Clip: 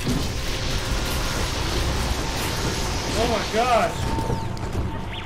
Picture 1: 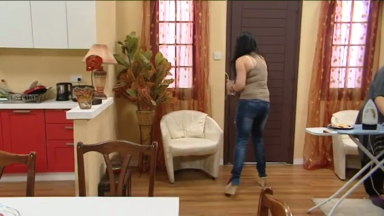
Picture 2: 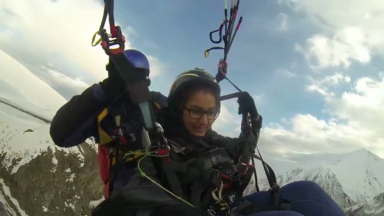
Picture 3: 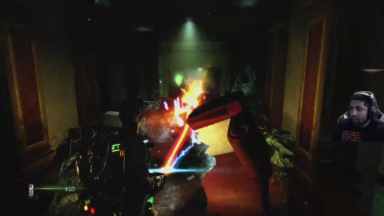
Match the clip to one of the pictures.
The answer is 3